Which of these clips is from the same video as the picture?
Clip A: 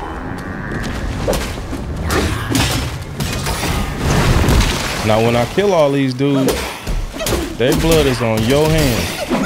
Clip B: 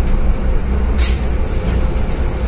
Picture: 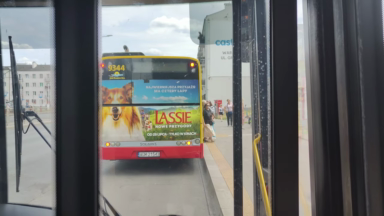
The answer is B